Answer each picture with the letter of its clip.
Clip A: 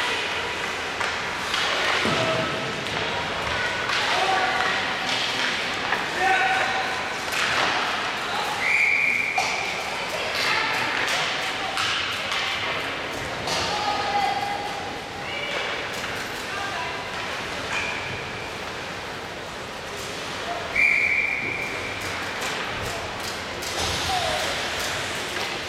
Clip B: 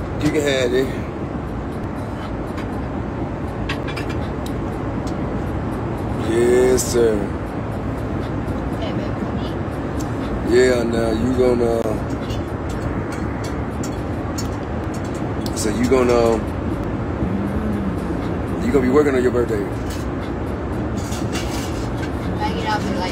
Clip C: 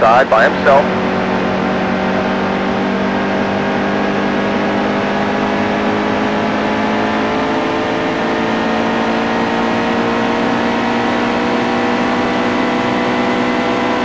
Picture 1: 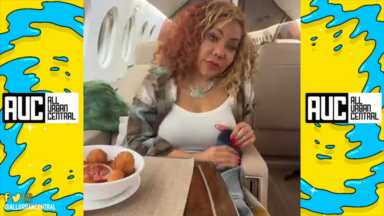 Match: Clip B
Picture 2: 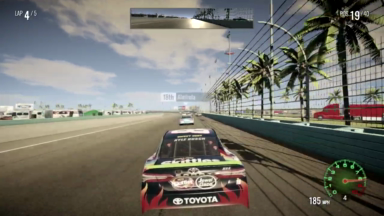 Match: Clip C